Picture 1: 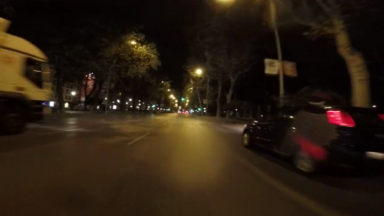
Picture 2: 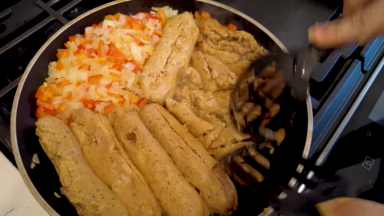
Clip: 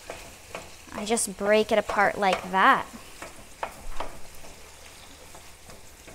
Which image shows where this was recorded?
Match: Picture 2